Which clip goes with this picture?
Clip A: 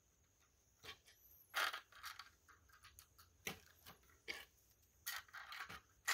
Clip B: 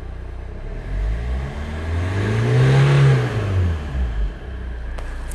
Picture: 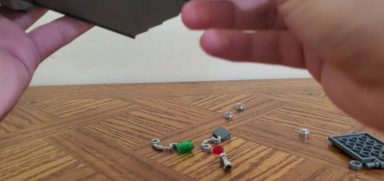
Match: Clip A